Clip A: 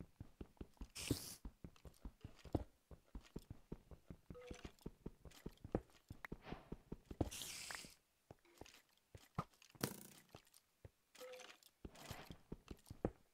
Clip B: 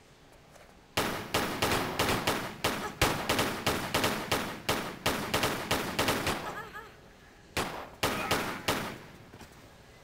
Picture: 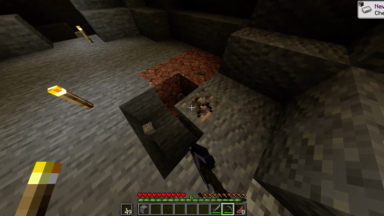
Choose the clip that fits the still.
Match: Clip A